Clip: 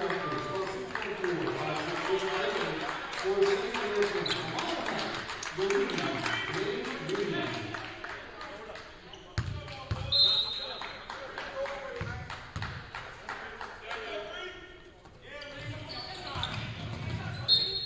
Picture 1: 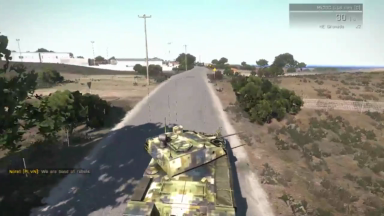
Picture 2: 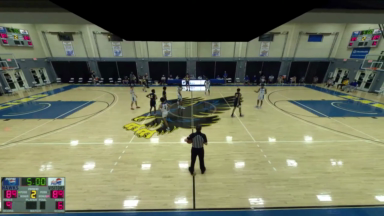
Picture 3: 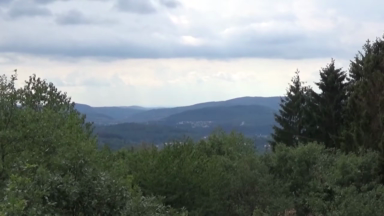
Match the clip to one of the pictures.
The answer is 2